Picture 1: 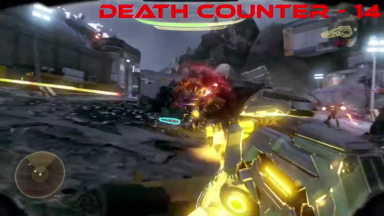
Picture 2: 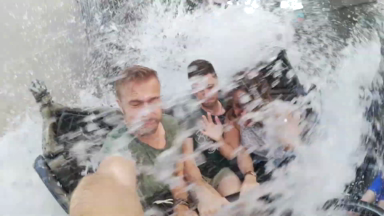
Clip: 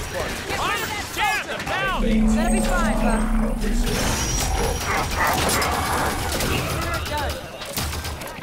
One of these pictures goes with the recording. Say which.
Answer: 1